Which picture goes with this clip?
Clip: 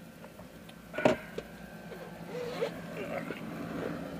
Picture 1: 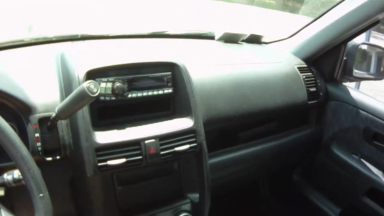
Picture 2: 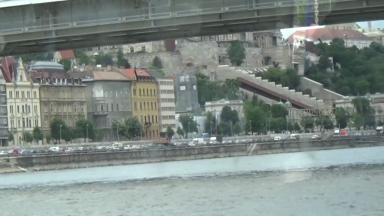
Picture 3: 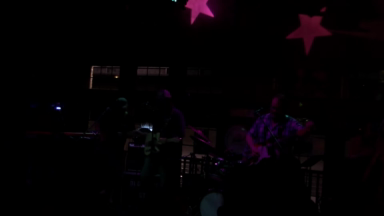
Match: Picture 1